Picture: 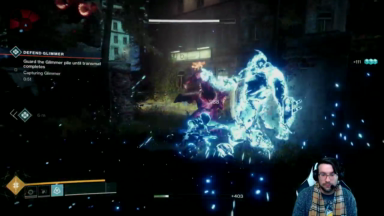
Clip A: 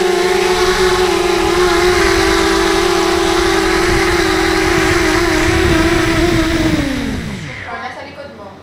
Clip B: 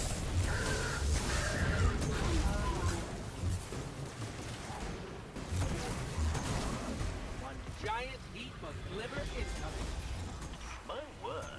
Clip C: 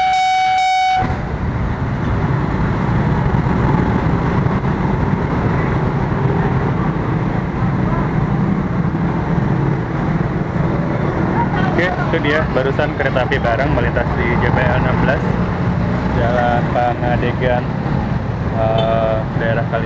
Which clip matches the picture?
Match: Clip B